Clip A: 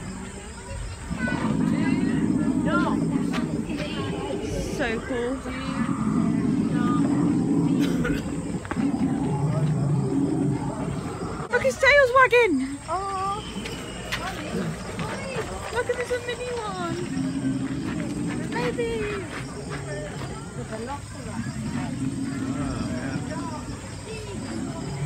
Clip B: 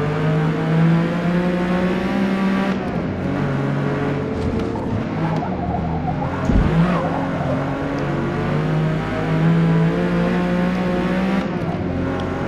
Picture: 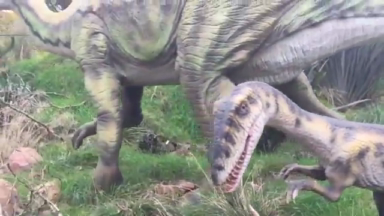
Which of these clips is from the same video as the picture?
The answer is A